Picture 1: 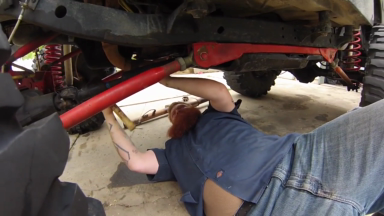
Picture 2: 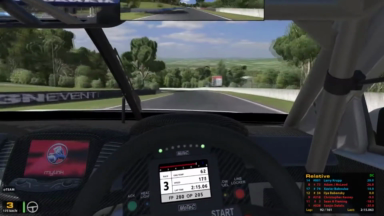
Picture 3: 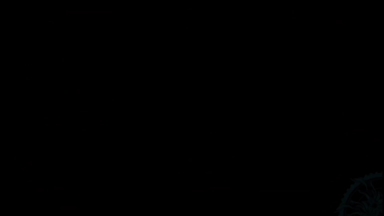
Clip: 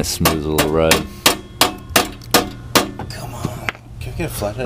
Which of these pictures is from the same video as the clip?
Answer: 1